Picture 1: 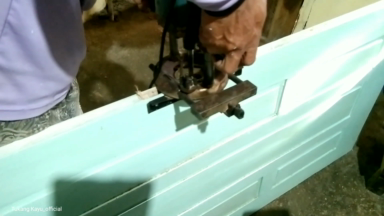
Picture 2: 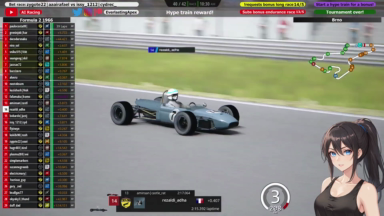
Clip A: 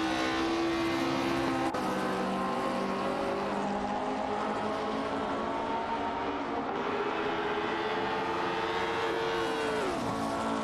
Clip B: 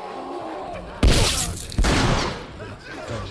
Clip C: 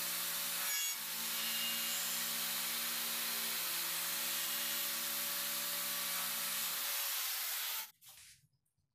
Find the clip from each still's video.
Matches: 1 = C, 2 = A